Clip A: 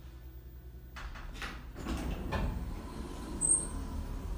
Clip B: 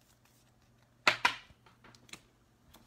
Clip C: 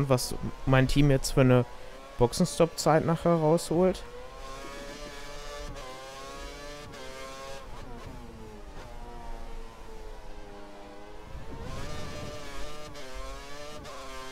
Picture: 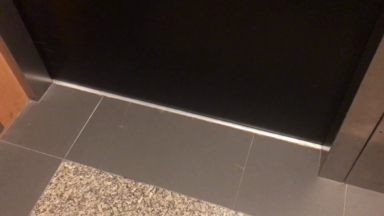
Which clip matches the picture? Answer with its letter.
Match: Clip A